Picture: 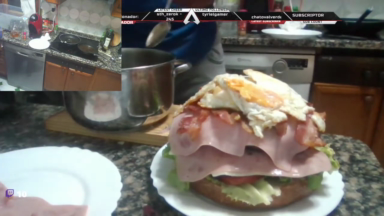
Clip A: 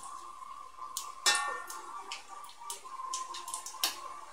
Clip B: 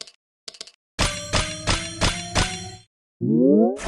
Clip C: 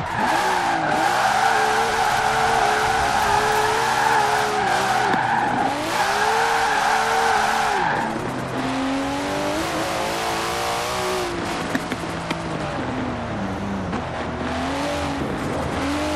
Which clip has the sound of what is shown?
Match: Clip A